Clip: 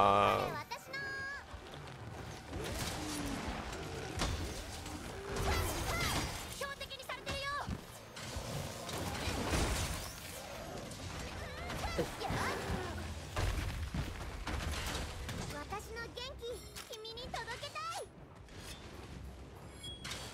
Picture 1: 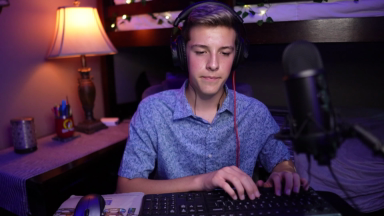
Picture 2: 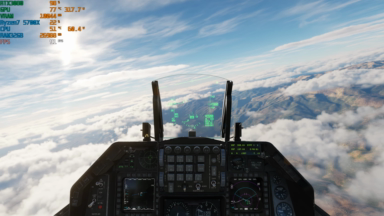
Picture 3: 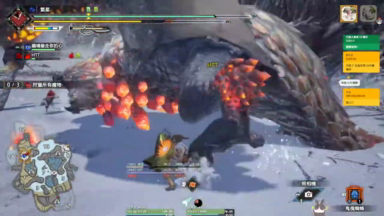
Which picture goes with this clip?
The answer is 3